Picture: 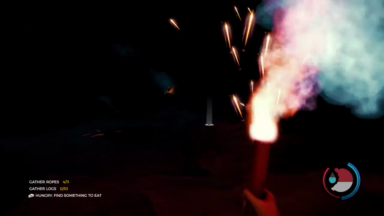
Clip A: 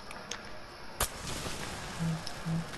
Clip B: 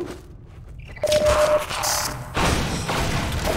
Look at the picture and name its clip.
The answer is A